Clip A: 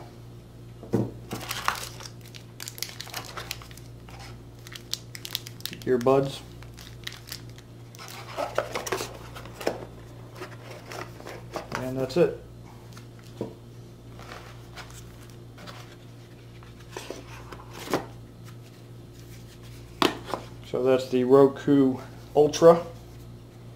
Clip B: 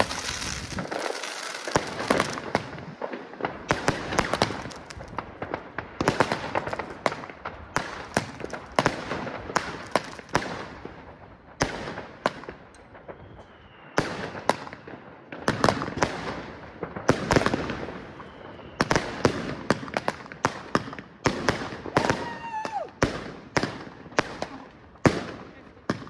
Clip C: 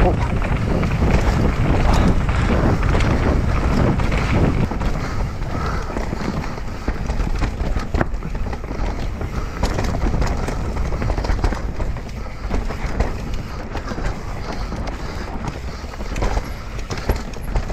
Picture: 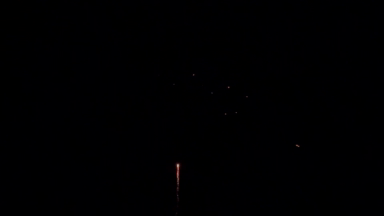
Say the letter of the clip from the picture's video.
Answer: B